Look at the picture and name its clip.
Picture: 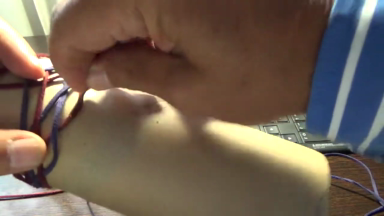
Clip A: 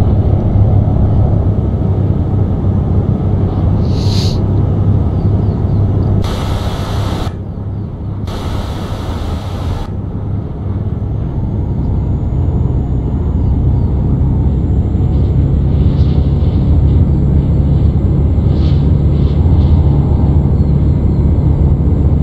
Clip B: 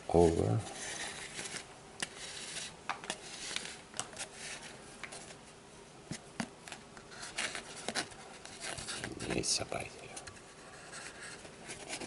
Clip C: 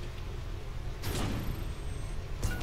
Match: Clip B